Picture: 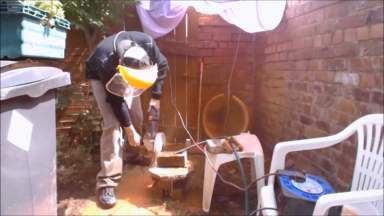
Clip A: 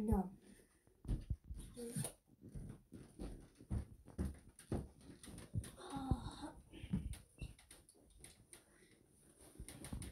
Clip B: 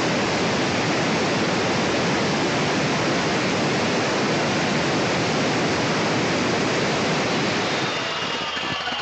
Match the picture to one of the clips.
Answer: B